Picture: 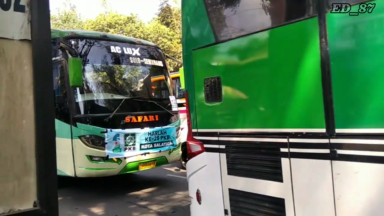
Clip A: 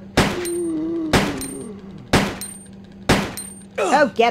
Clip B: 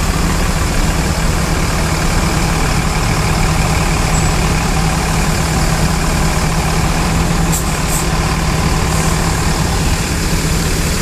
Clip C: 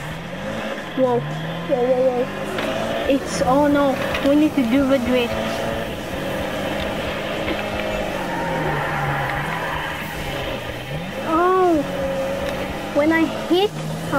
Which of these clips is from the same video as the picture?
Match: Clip B